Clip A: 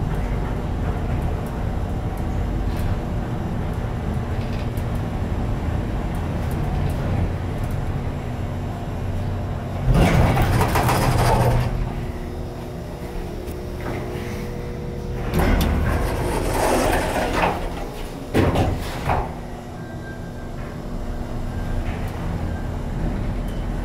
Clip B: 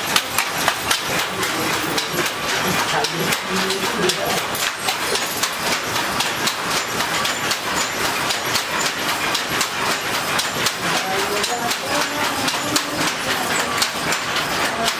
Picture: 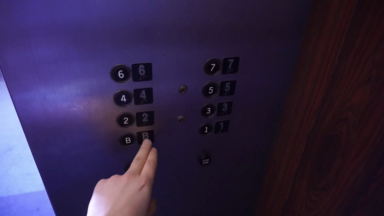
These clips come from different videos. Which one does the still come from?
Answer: A